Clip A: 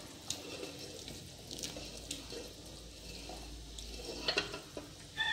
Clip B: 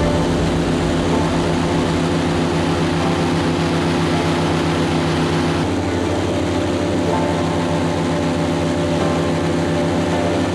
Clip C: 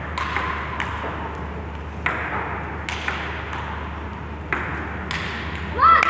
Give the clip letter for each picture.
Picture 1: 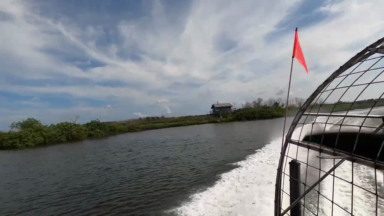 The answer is B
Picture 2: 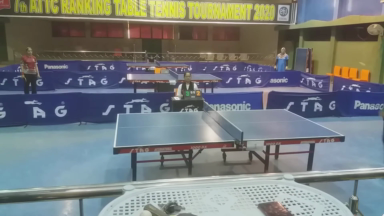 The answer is C